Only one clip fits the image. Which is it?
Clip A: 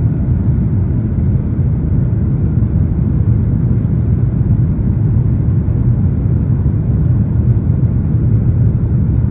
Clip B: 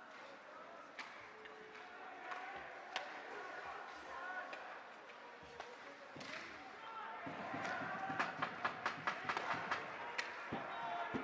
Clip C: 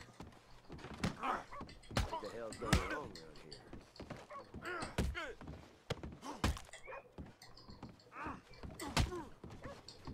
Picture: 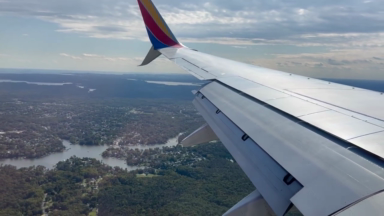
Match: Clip A